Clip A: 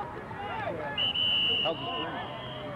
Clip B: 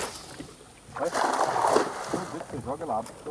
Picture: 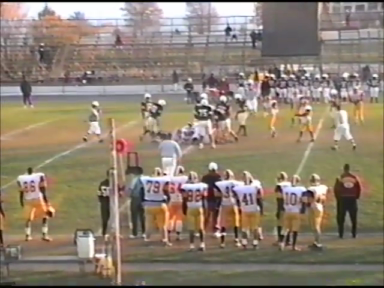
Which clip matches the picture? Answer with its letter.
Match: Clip A